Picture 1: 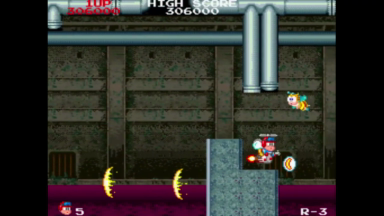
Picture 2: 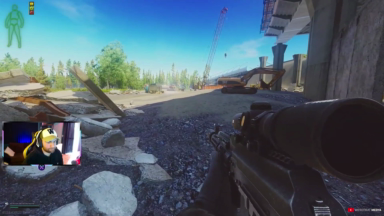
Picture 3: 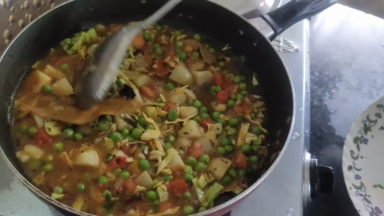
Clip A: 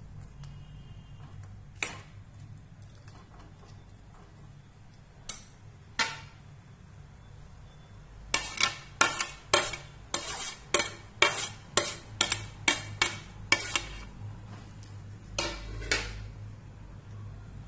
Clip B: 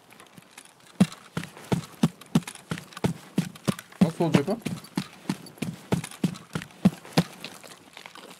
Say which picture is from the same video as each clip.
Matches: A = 3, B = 2